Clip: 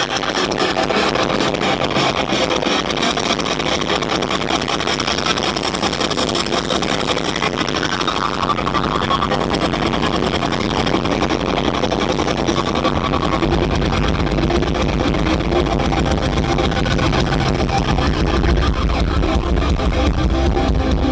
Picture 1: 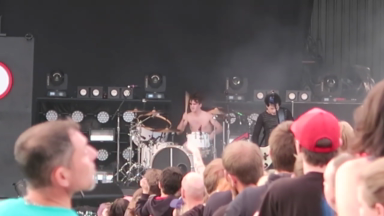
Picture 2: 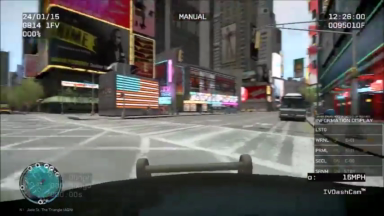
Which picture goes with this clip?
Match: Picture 1